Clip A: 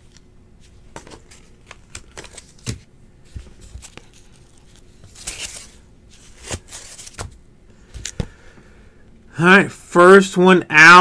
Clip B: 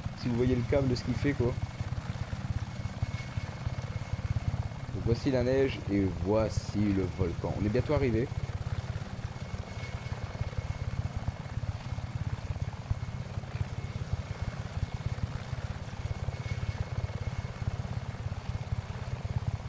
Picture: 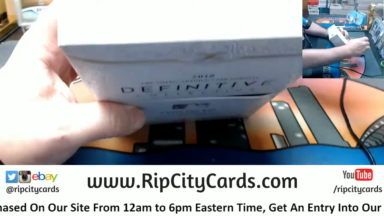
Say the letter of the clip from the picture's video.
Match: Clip A